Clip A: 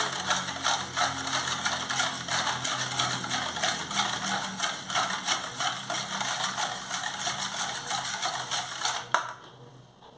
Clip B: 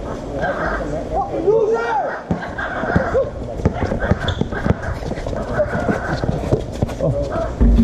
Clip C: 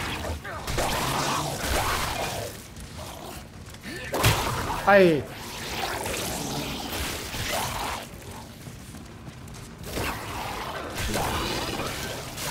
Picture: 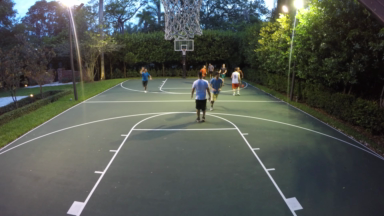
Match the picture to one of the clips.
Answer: B